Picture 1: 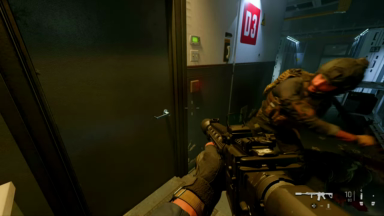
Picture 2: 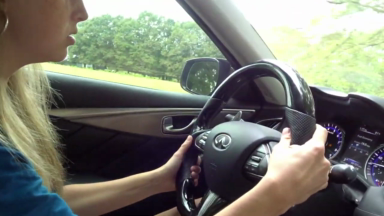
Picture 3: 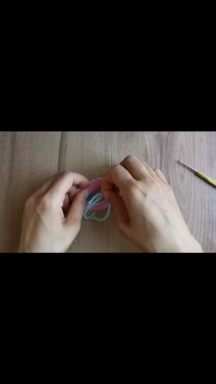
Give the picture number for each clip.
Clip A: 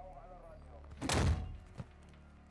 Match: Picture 1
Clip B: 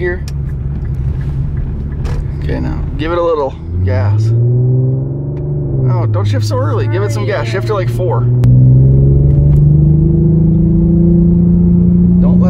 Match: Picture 2